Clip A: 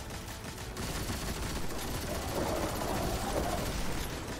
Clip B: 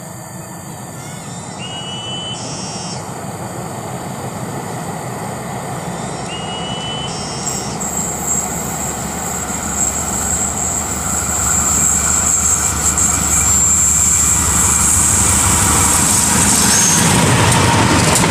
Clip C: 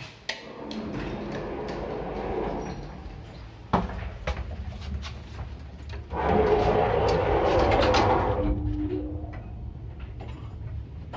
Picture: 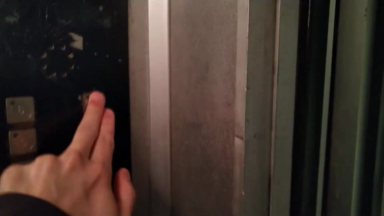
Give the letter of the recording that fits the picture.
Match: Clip C